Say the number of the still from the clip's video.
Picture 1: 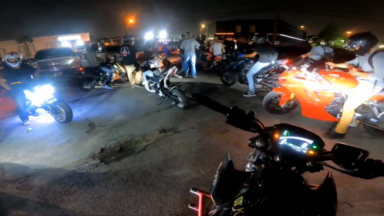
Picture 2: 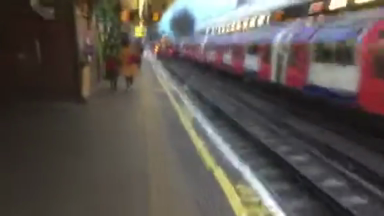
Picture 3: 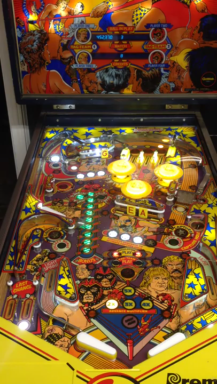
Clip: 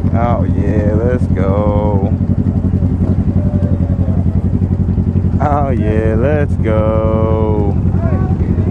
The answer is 1